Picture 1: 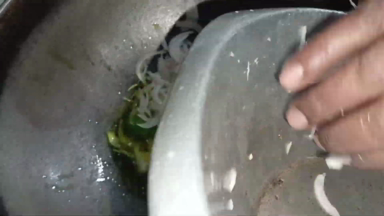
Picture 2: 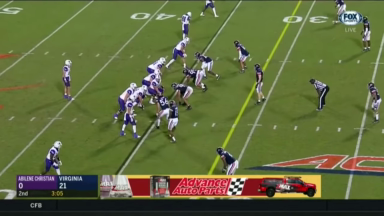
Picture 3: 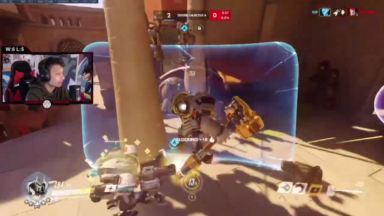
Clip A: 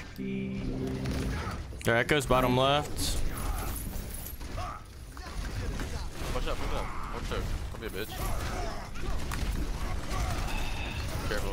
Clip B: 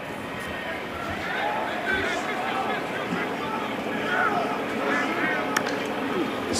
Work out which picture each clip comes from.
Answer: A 3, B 2